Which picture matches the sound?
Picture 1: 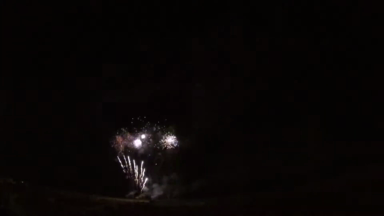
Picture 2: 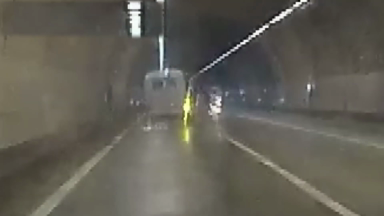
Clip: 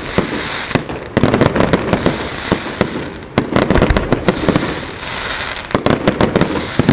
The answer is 1